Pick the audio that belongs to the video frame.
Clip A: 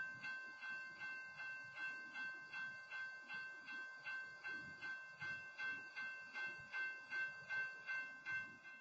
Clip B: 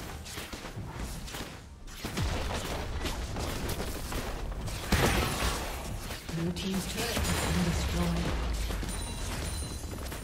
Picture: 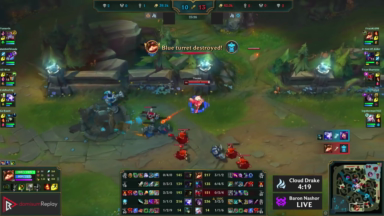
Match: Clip B